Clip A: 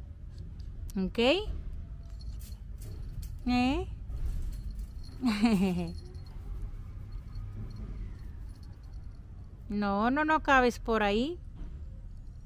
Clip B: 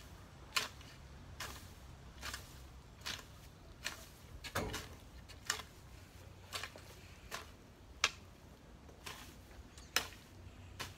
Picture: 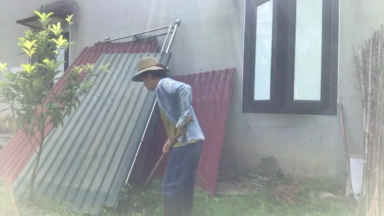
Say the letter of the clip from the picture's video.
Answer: B